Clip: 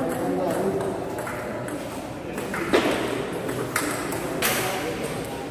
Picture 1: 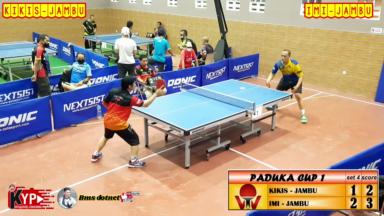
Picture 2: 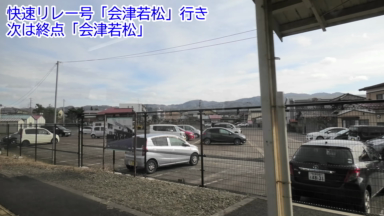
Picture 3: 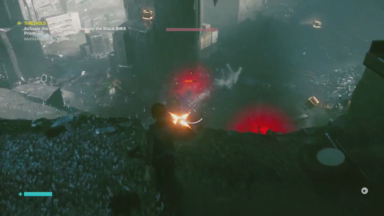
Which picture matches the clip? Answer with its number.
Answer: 1